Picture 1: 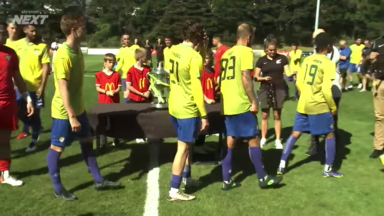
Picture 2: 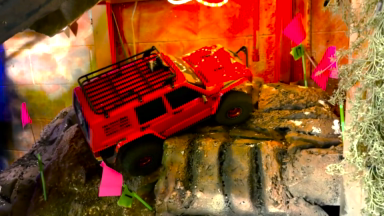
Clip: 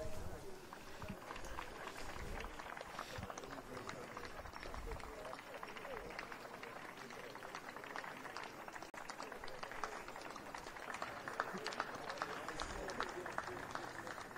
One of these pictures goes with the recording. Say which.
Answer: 1